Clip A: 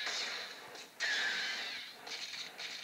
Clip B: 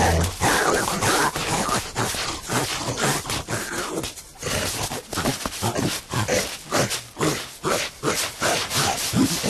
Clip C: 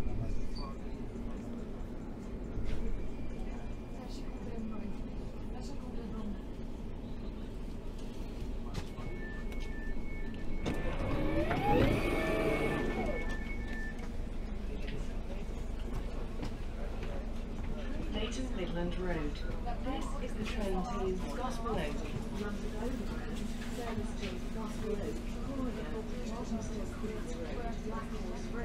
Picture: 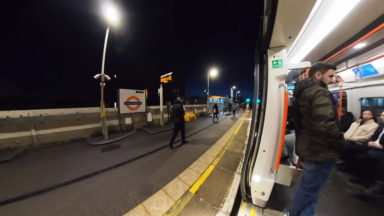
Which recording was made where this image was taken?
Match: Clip C